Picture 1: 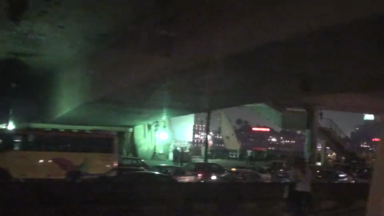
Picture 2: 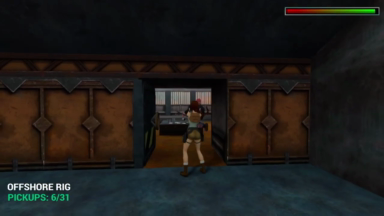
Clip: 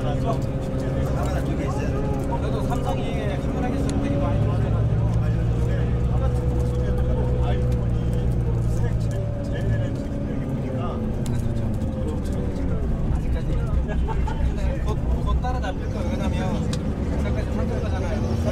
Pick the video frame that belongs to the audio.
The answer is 1